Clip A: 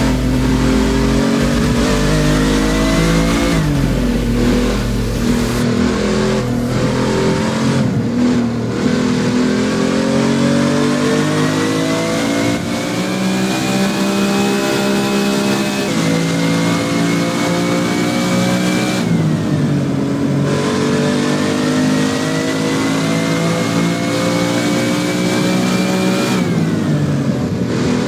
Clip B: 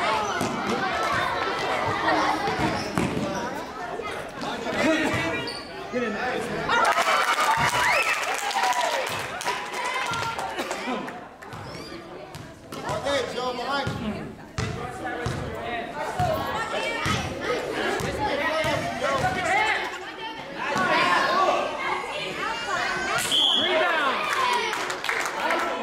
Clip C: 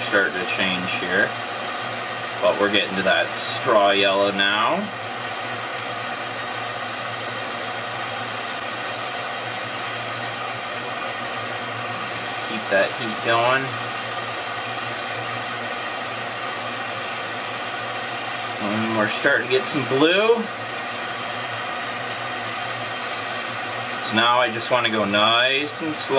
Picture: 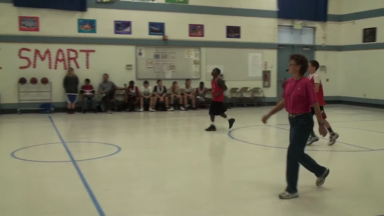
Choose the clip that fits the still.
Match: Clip B